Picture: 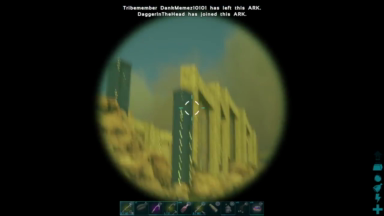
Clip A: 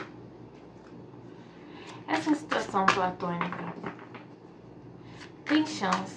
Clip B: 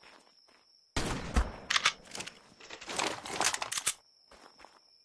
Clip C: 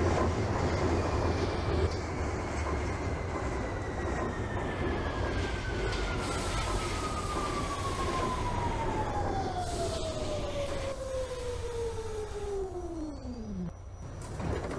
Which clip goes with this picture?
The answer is B